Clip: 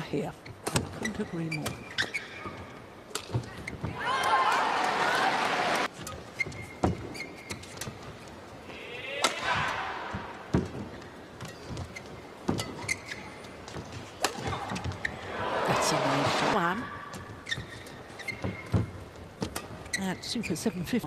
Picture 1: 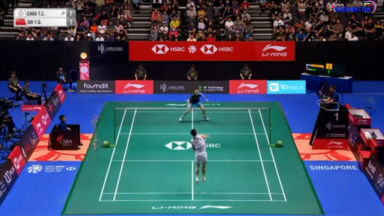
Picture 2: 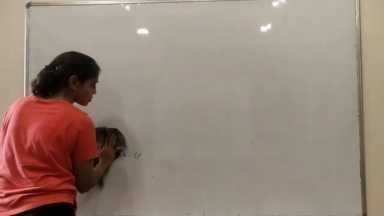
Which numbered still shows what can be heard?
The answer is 1